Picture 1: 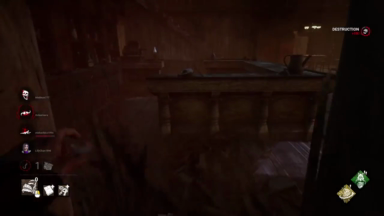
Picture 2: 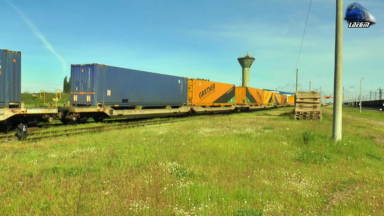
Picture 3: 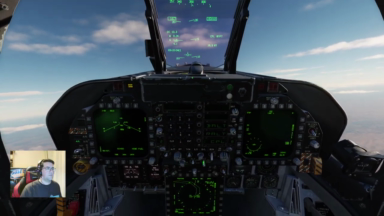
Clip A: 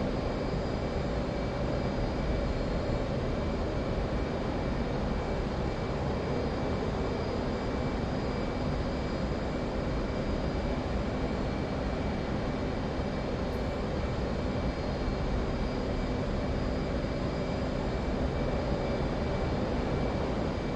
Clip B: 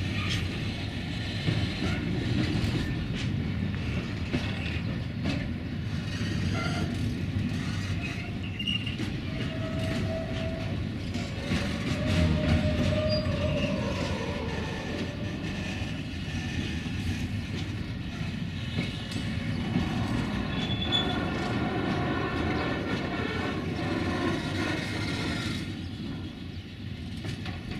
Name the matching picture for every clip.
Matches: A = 3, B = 2